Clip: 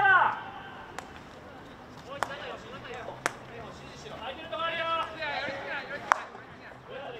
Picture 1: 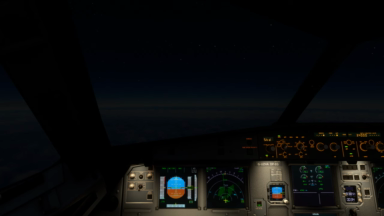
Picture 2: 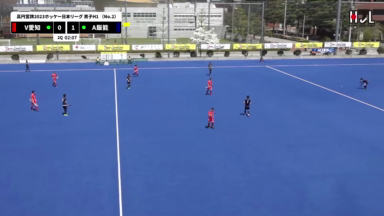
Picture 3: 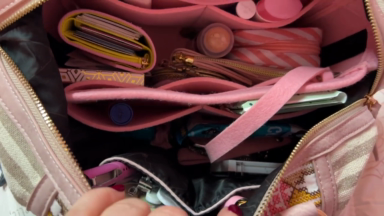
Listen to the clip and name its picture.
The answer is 2